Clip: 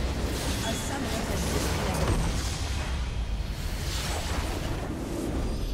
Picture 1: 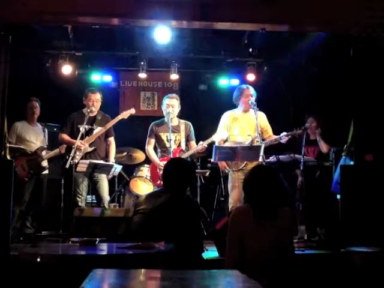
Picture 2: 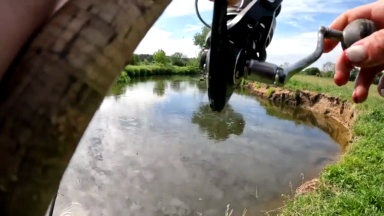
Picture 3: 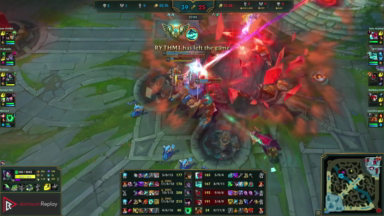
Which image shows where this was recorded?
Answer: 3